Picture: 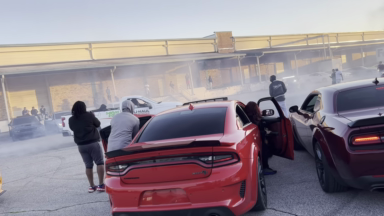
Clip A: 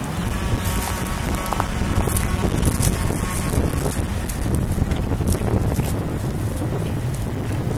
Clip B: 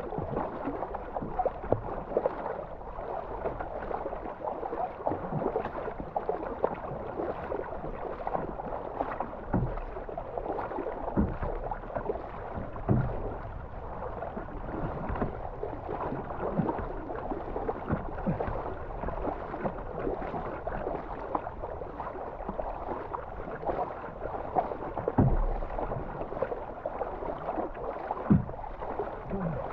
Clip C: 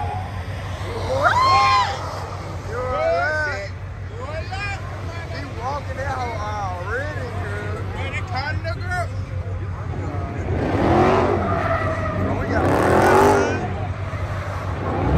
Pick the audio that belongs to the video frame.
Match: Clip C